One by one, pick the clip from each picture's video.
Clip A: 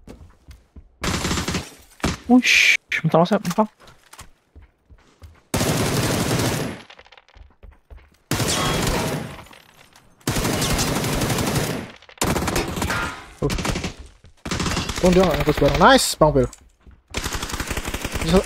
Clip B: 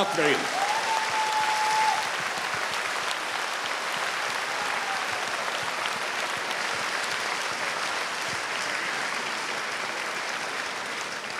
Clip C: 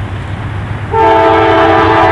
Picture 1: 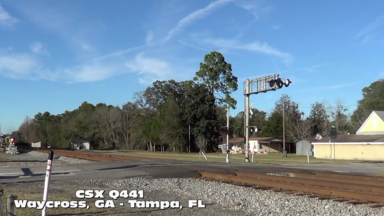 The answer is C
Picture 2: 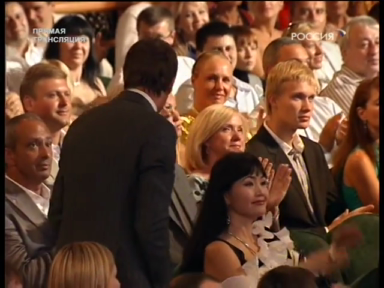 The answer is B